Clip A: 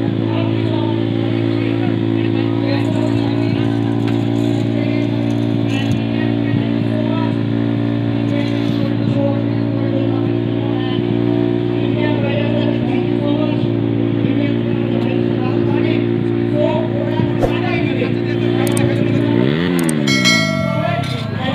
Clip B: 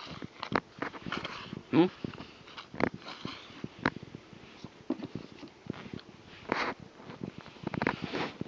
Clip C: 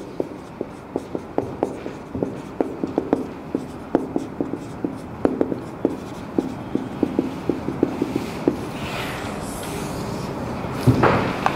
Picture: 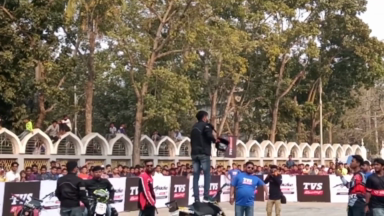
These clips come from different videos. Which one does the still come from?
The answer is A